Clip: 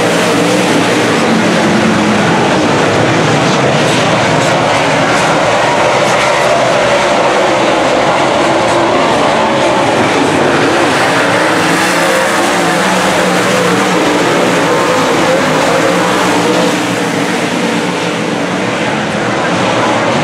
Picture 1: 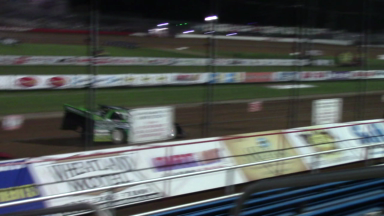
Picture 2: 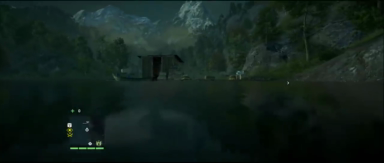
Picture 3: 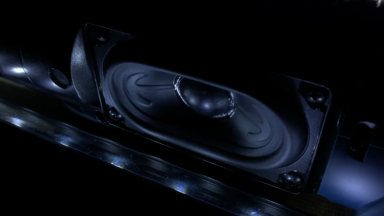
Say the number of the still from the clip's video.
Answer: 1